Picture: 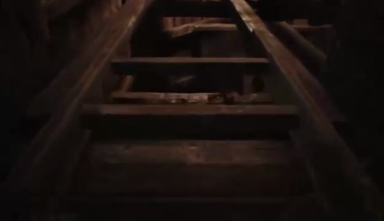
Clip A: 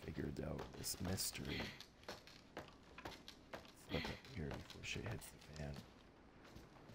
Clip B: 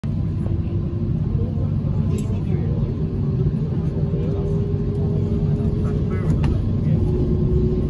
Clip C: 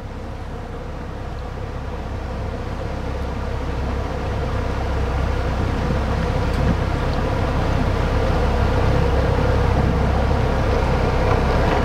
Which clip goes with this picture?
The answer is A